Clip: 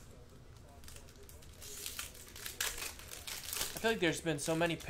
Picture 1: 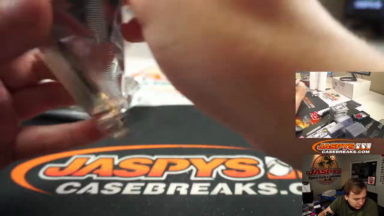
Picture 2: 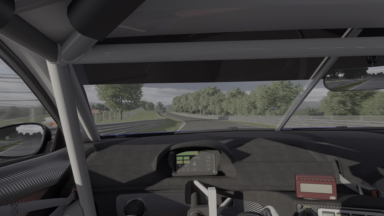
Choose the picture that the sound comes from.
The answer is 1